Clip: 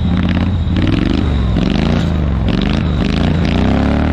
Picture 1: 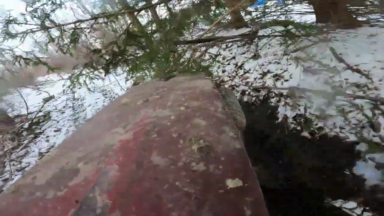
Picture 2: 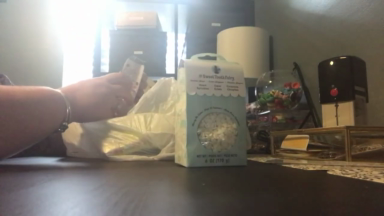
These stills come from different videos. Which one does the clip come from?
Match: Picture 1